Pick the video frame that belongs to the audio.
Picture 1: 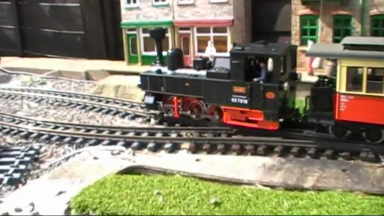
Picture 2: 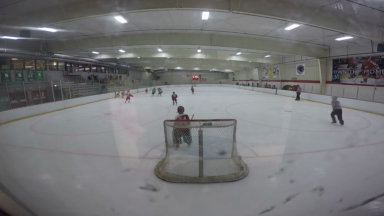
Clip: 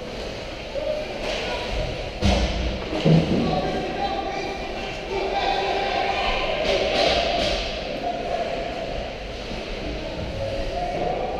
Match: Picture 2